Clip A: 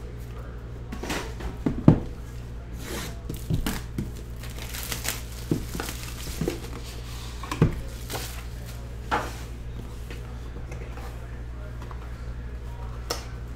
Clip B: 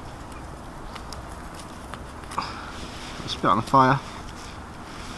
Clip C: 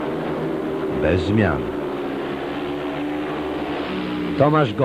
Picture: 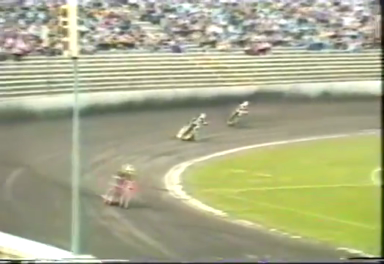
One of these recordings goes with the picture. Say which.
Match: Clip C